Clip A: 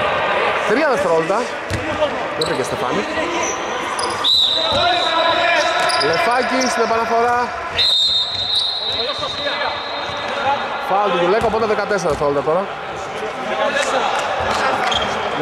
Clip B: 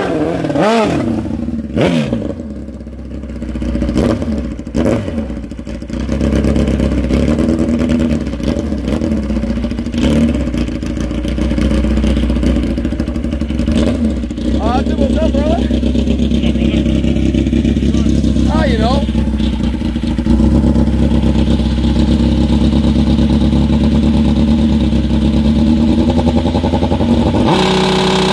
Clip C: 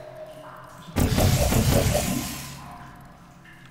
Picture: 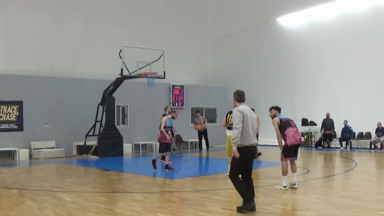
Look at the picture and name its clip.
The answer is A